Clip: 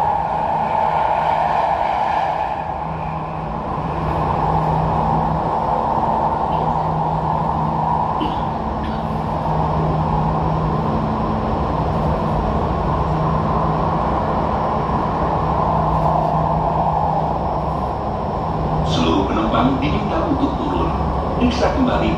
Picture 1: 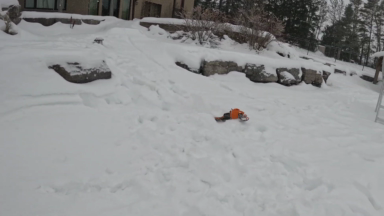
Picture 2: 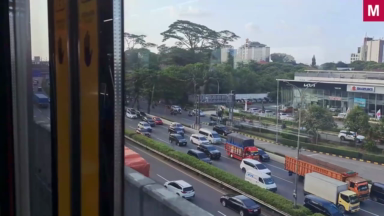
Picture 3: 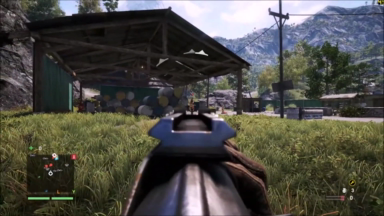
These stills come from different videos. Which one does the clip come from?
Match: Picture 2